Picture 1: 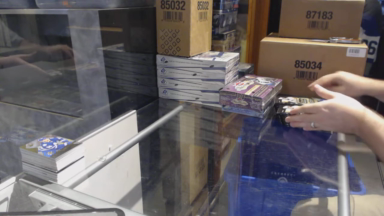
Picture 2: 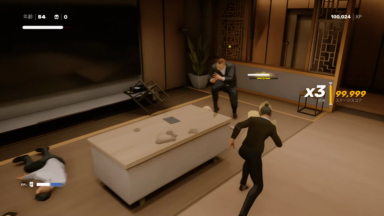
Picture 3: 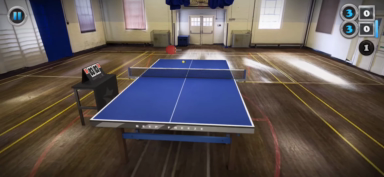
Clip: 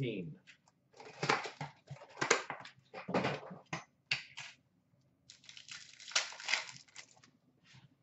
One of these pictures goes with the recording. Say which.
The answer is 1